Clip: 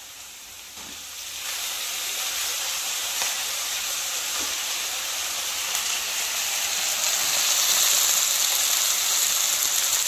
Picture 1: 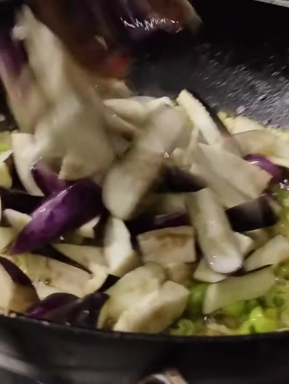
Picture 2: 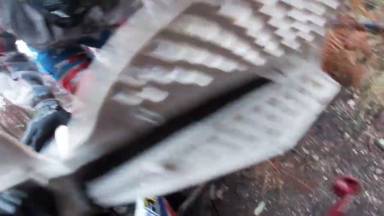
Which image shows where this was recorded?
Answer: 1